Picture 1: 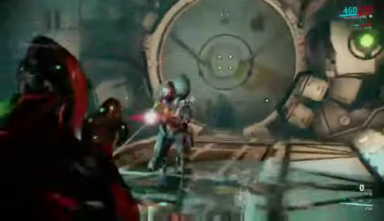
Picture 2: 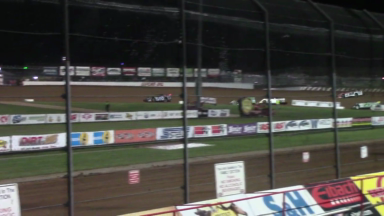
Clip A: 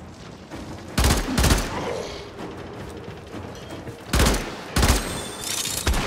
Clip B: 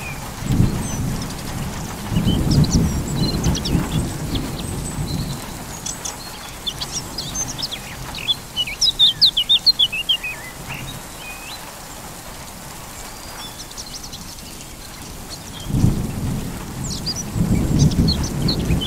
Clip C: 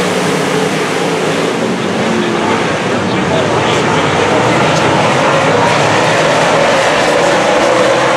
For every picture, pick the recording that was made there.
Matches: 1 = A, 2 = C